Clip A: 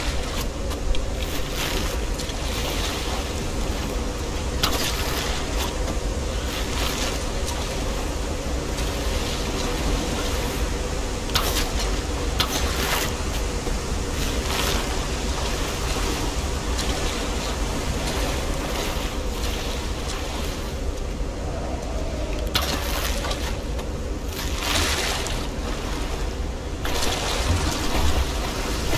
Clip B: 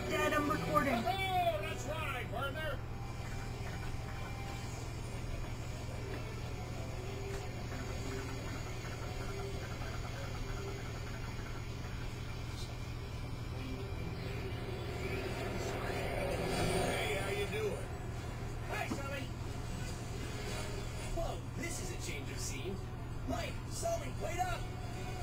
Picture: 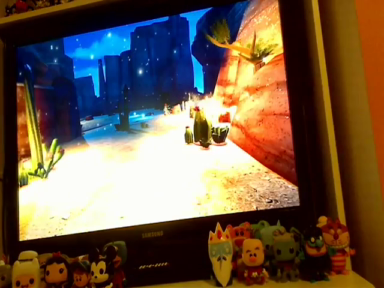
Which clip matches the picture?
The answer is B